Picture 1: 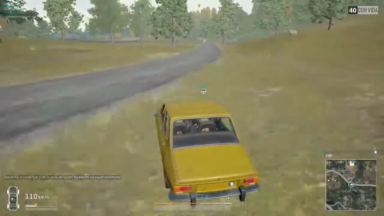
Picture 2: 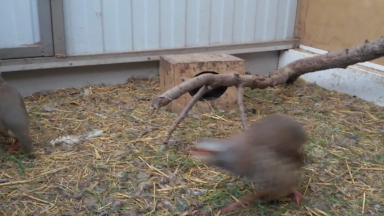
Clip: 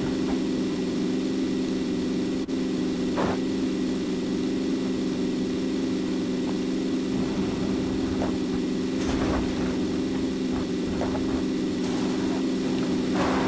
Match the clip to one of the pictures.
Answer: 1